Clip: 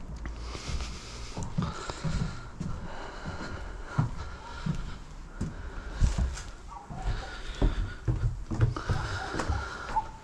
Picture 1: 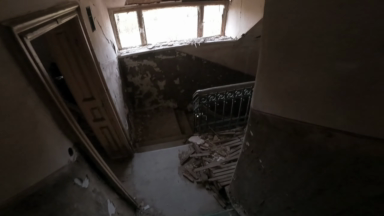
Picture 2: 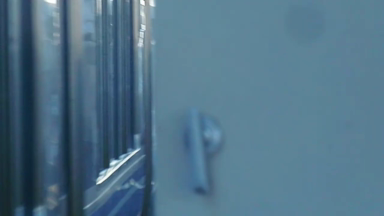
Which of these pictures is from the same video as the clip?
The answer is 1